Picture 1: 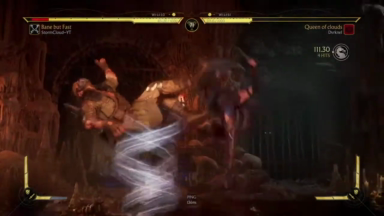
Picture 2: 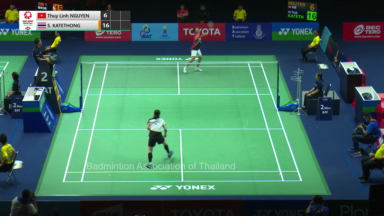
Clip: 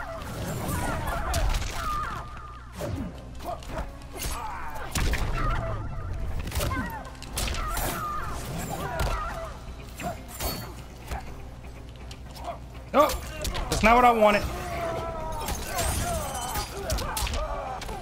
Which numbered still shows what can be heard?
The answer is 1